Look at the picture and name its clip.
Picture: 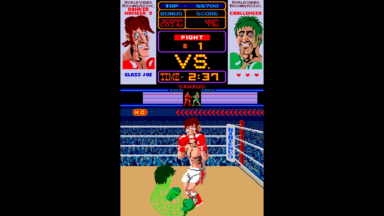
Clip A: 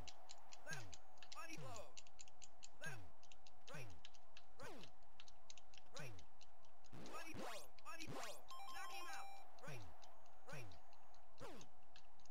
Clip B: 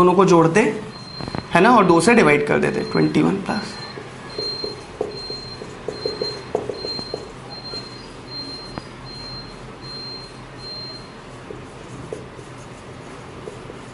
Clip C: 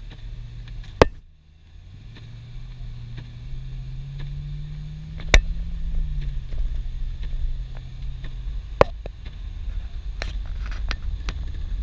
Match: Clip A